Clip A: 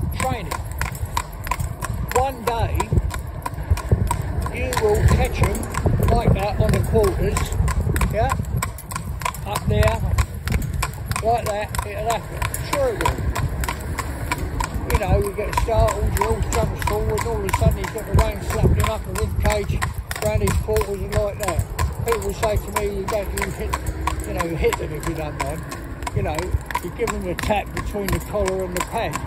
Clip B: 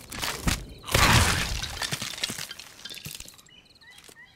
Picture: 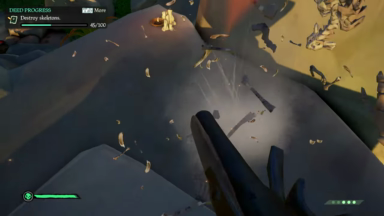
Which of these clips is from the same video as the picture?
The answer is B